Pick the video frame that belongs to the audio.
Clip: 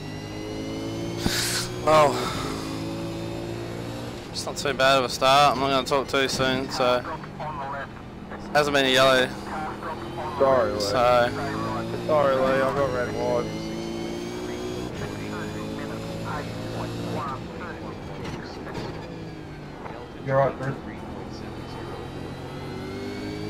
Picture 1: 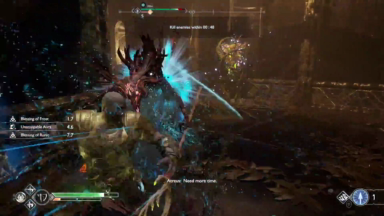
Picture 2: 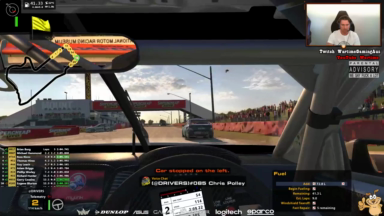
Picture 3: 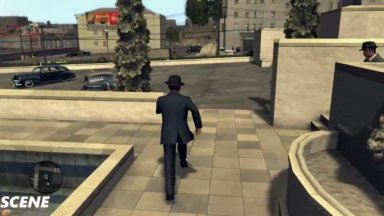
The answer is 2